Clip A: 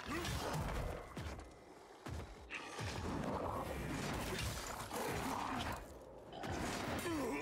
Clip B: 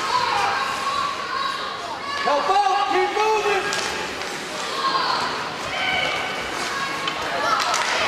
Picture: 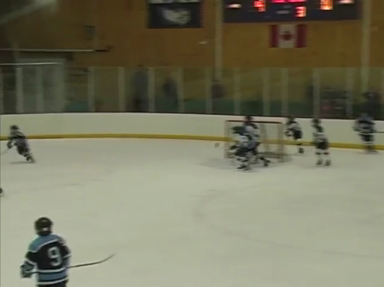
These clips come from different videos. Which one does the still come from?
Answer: B